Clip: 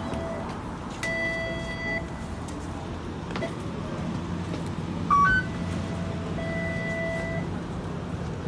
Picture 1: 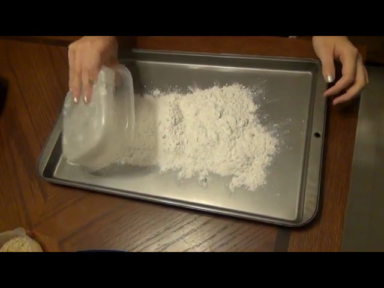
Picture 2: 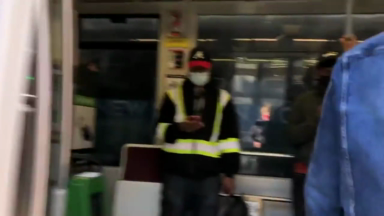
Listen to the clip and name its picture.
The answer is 2